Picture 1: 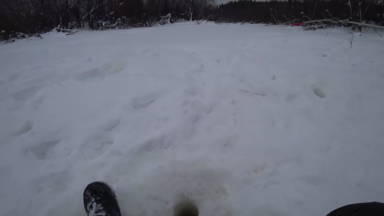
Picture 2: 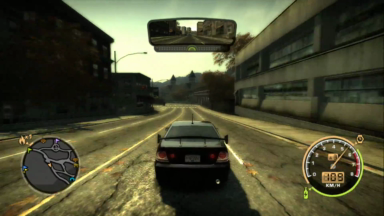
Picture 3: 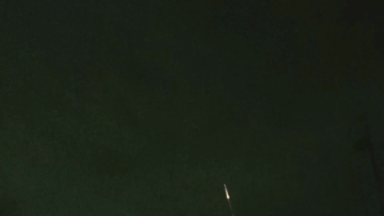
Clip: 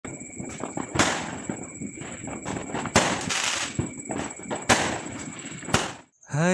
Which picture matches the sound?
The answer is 3